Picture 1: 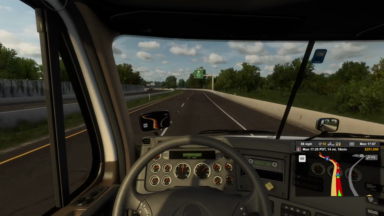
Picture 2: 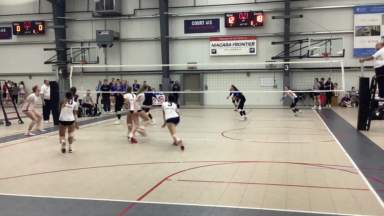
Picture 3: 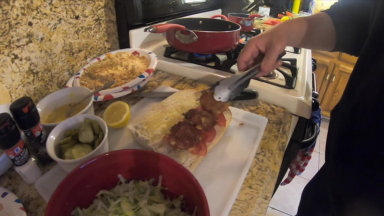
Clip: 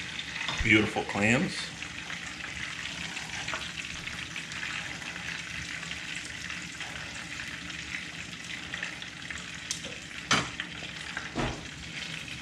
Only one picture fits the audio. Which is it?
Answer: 3